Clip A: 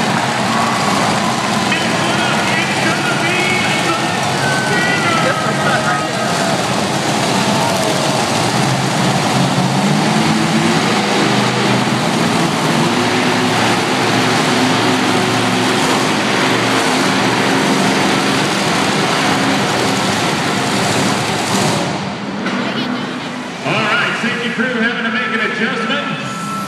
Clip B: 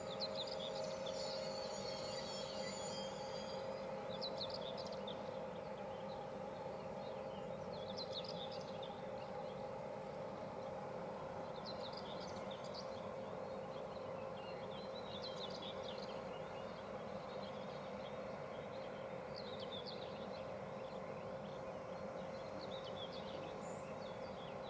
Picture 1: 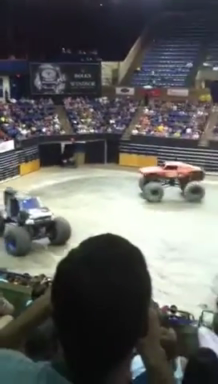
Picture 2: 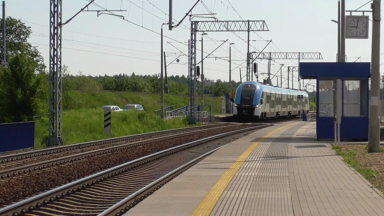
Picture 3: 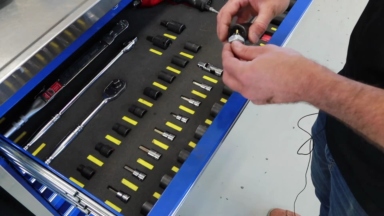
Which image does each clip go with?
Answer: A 1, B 2